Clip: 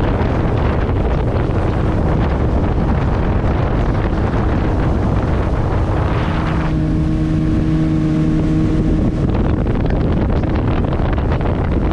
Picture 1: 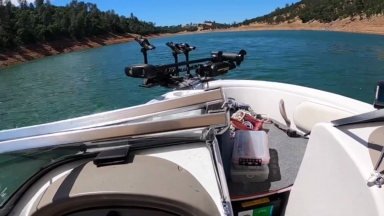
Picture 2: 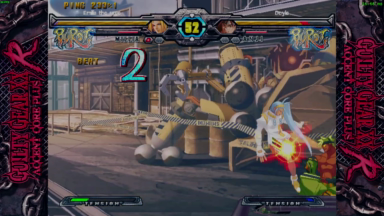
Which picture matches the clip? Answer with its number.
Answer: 1